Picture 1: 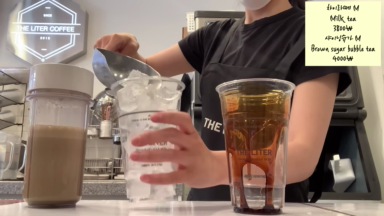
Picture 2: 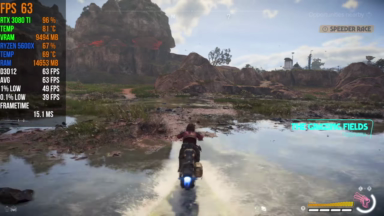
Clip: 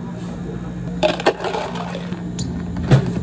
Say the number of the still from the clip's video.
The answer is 1